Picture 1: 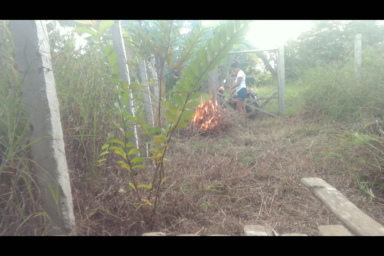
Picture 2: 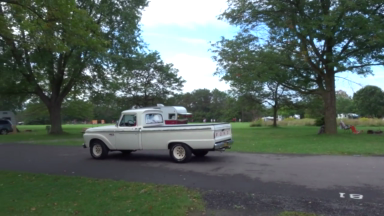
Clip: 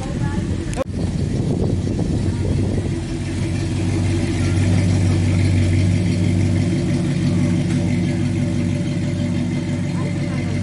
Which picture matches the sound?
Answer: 2